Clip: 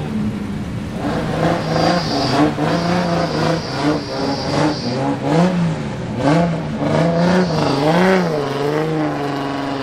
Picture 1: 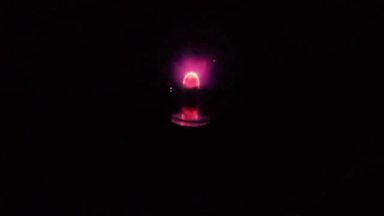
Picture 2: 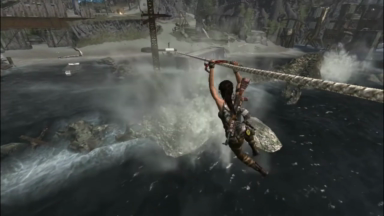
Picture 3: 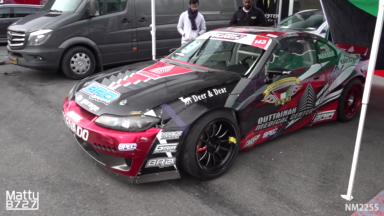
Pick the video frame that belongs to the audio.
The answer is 3